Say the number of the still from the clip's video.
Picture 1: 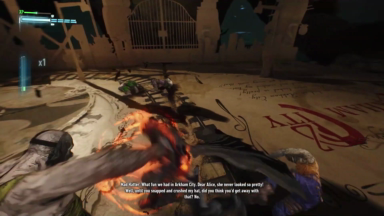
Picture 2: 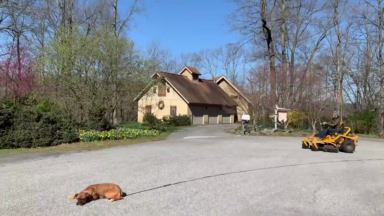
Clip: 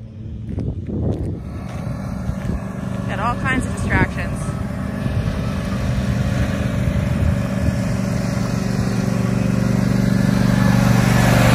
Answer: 2